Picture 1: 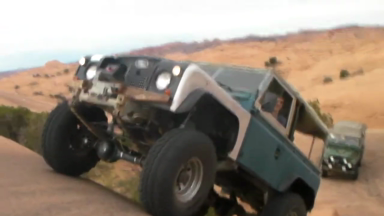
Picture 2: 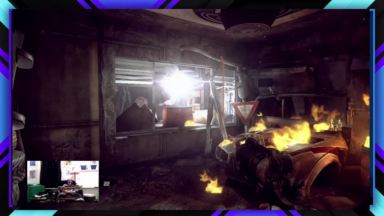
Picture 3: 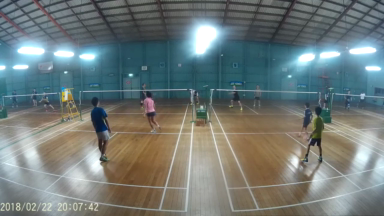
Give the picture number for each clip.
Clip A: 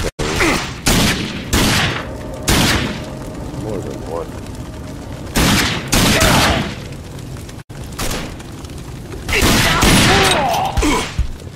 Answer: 2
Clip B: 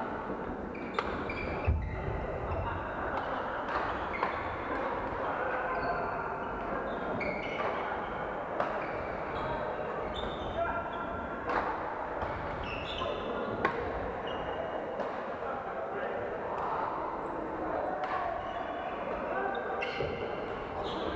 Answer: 3